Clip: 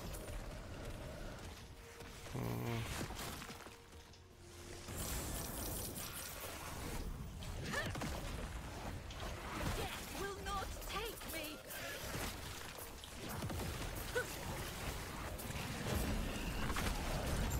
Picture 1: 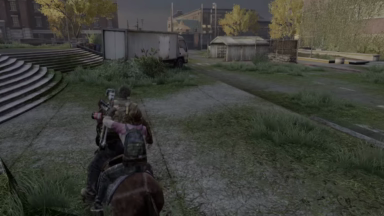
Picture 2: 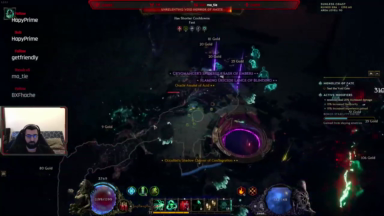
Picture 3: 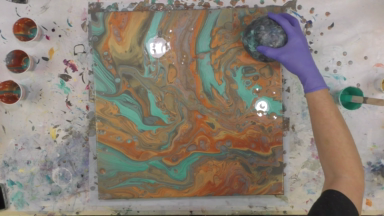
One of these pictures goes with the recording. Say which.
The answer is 2